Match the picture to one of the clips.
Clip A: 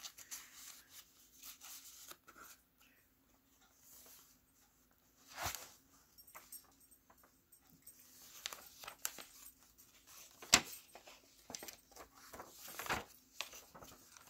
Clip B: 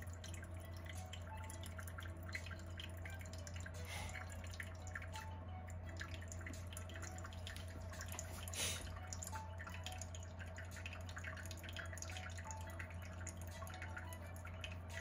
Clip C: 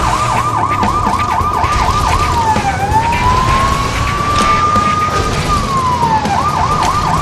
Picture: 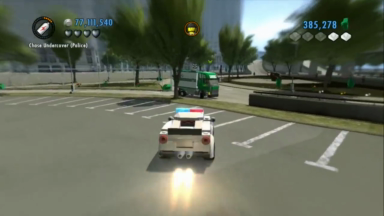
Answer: C